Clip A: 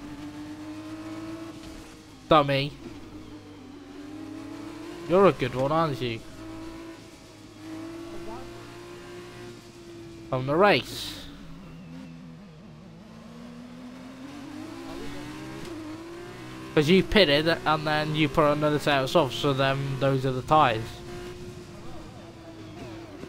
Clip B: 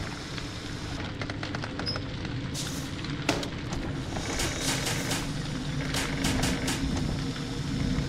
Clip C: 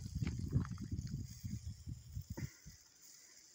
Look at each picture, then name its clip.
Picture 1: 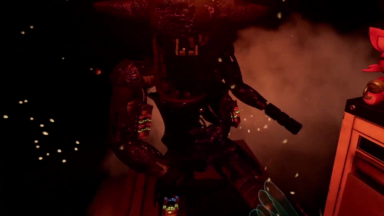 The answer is B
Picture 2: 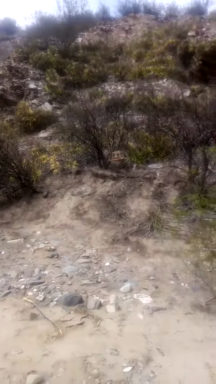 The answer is C